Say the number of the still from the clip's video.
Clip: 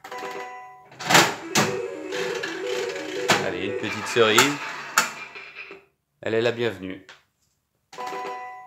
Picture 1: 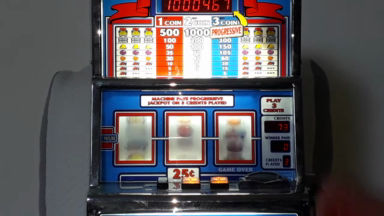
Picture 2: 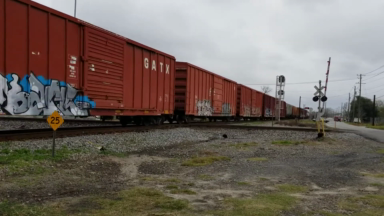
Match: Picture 1